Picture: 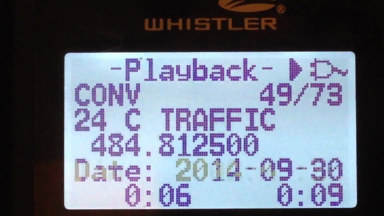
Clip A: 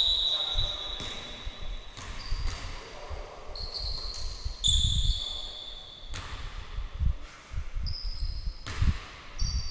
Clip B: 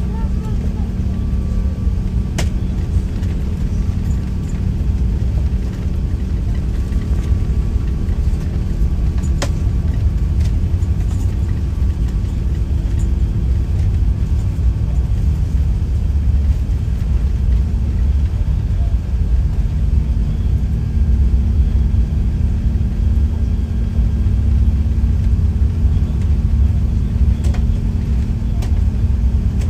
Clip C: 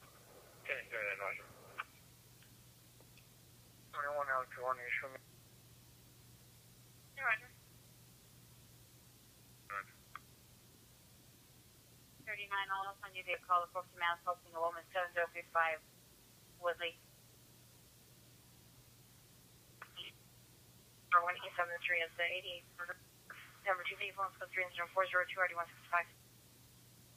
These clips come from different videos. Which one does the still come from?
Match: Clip C